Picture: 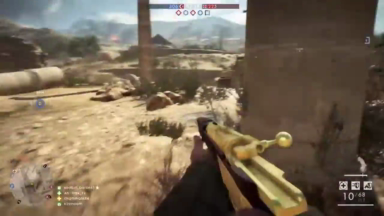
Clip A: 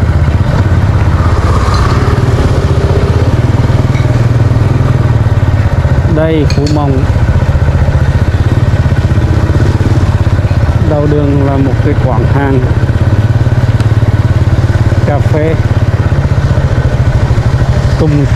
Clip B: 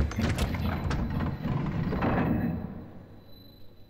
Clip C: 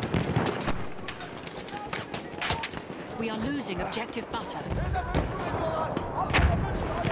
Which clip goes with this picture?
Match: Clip C